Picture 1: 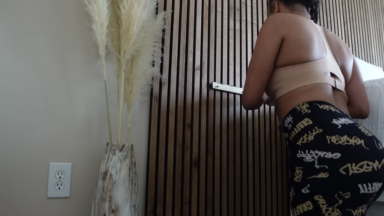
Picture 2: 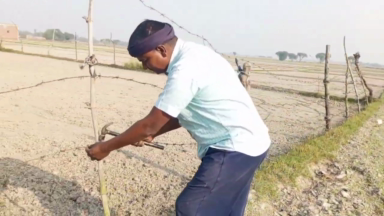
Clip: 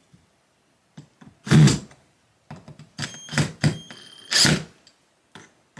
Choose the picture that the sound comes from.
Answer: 1